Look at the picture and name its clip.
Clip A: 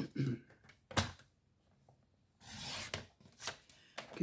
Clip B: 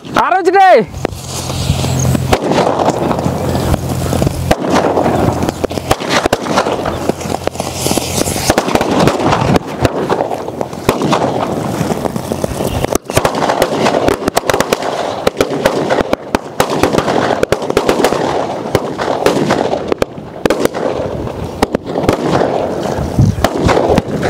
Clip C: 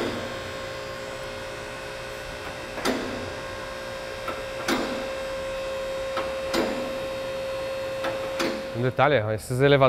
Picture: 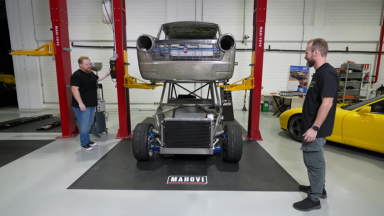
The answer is C